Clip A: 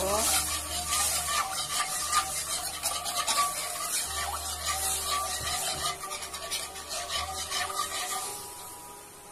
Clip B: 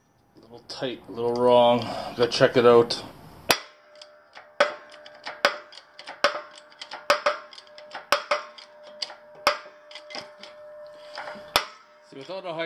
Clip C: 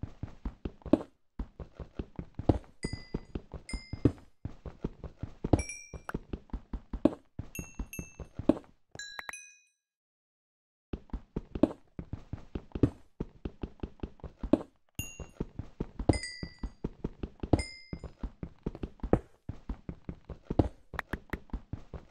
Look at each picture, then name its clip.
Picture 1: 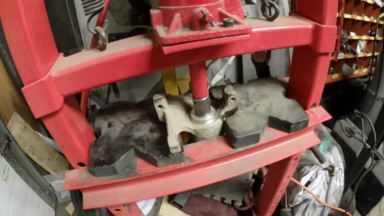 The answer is B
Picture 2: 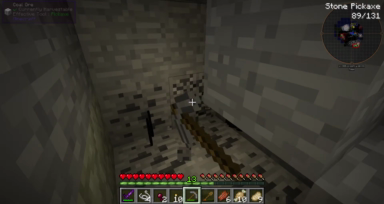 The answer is C